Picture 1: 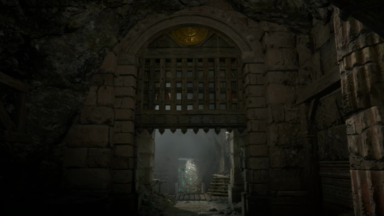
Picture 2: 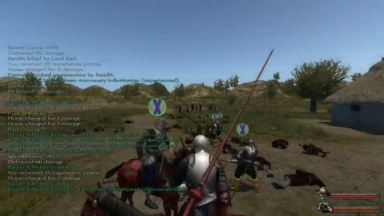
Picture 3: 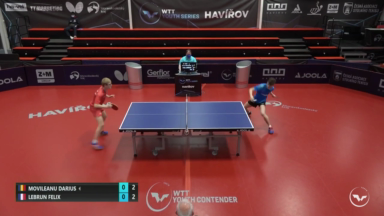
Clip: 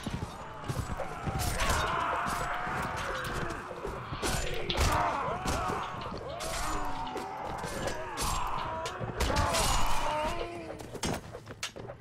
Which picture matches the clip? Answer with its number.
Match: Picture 2